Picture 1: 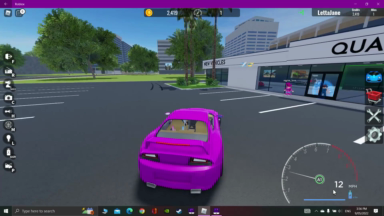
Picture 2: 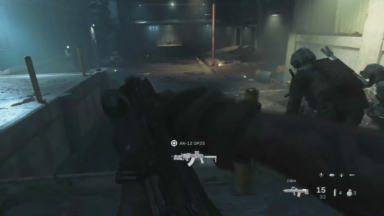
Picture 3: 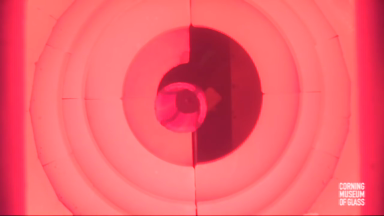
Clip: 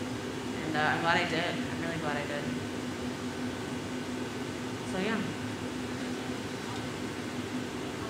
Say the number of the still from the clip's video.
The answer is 3